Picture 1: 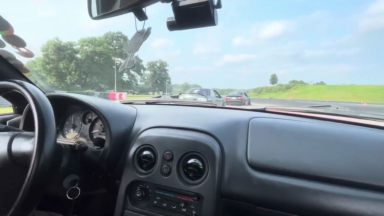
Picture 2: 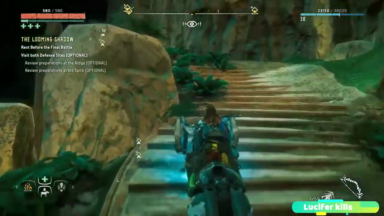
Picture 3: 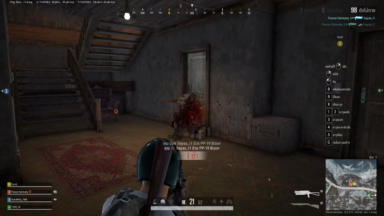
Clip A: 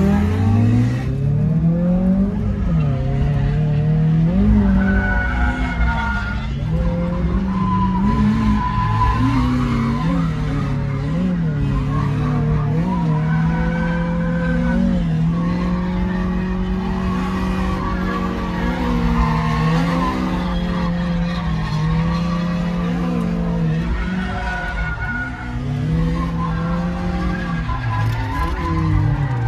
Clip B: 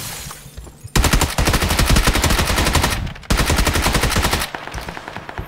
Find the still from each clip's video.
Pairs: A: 1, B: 3